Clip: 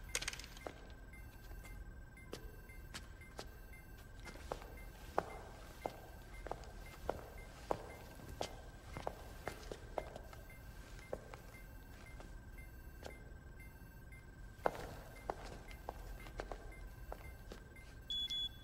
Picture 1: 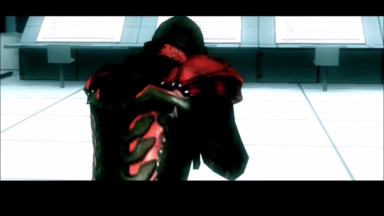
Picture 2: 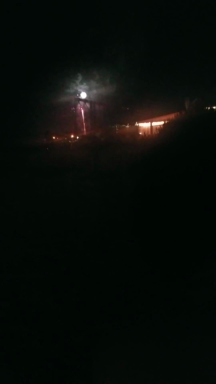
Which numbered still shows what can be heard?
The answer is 1